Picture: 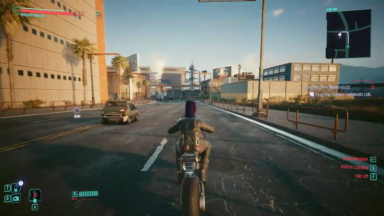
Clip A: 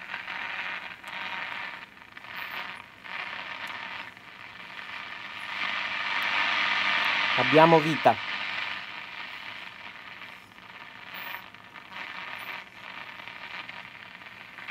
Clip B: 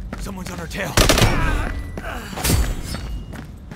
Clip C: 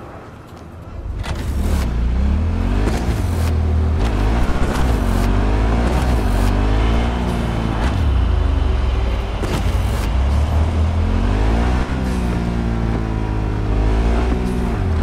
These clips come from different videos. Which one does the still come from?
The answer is C